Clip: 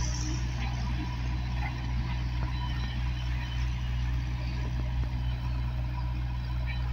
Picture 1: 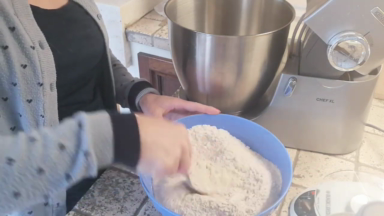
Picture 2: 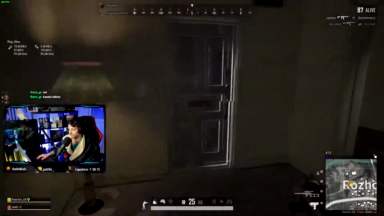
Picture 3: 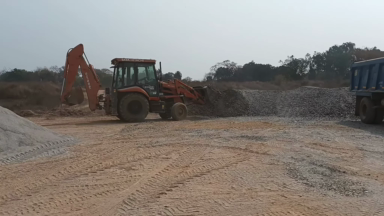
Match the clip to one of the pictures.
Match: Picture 3